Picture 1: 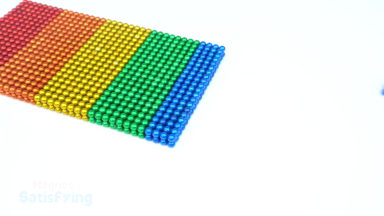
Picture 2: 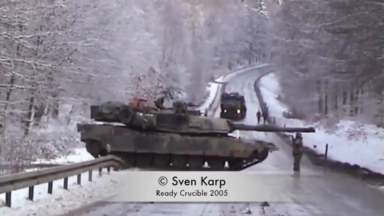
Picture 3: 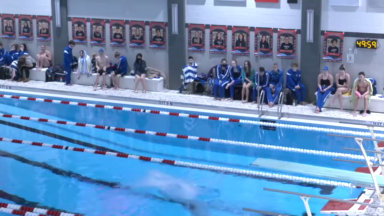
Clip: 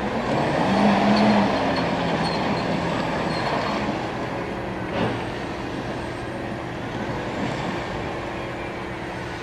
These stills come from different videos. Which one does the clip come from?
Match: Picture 2